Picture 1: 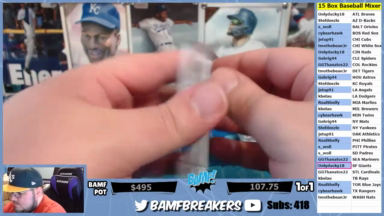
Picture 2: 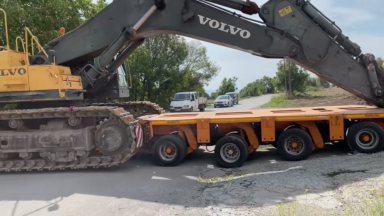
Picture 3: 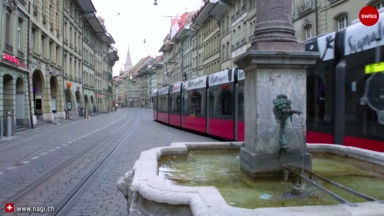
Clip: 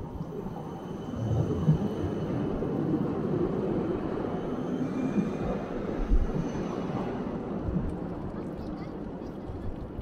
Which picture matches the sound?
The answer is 3